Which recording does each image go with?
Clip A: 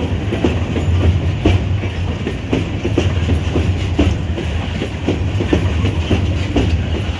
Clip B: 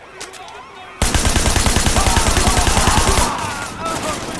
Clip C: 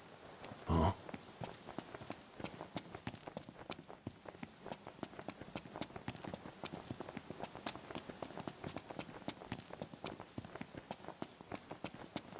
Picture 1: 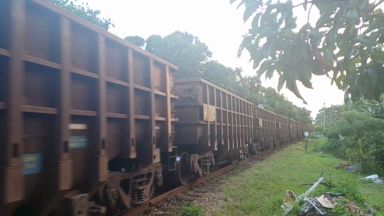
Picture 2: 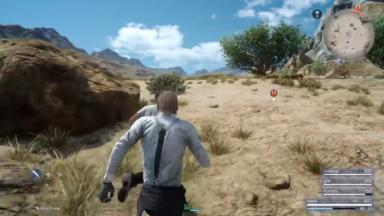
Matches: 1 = A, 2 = C